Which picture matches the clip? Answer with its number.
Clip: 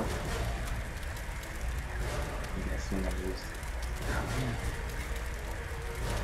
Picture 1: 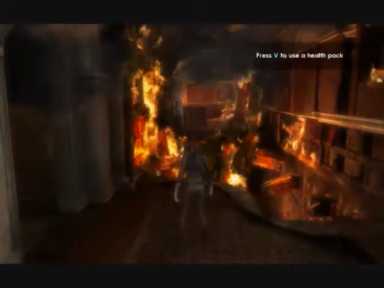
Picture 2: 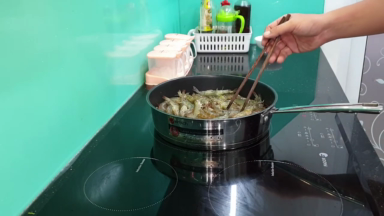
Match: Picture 1